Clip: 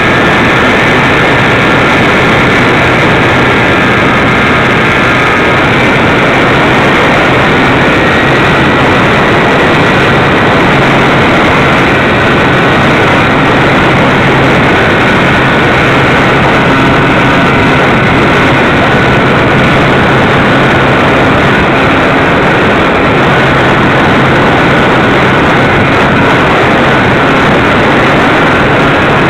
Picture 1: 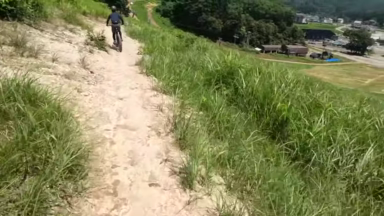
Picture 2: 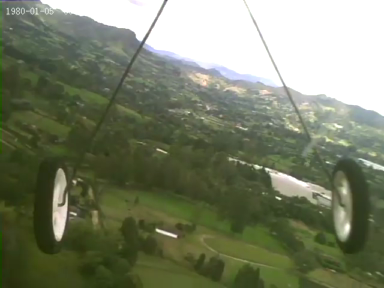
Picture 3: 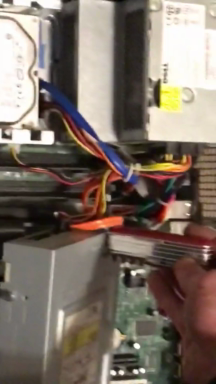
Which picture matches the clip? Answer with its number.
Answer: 2